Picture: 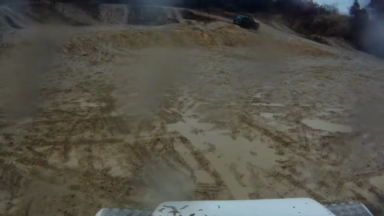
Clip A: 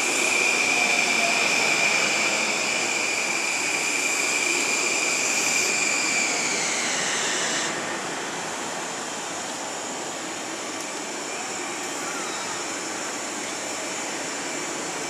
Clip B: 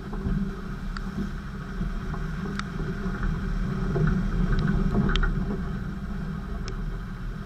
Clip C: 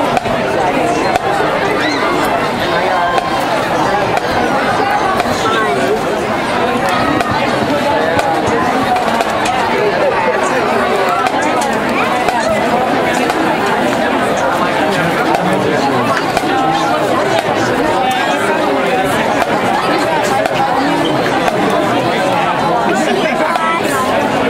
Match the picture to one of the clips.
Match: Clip B